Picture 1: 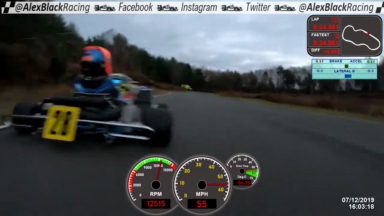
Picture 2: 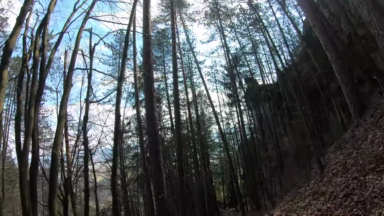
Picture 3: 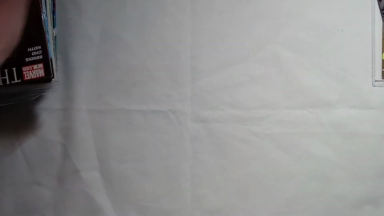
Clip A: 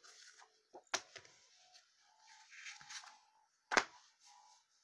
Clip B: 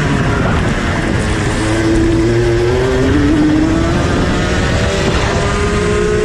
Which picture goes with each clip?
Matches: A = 3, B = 1